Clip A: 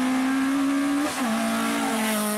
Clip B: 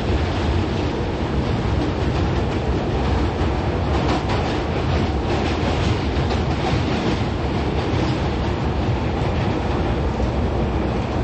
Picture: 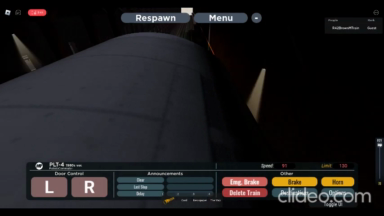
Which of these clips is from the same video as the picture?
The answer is B